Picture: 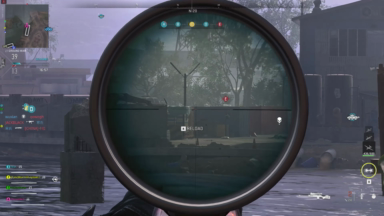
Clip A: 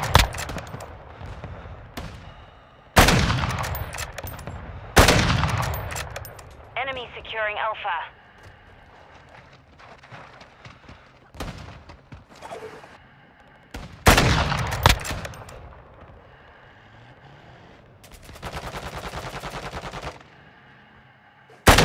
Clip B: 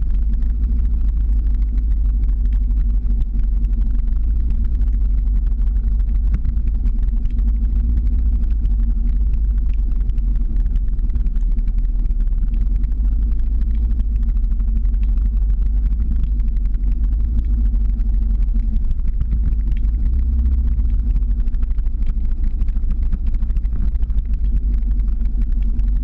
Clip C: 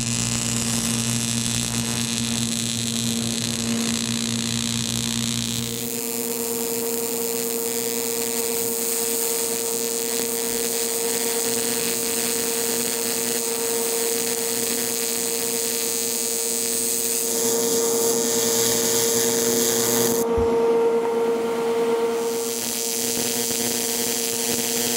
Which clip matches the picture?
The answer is A